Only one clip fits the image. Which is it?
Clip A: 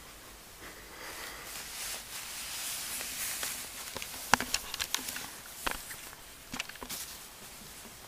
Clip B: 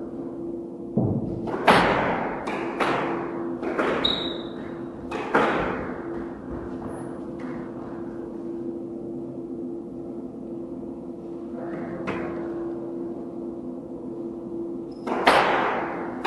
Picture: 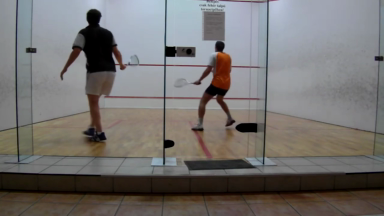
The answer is B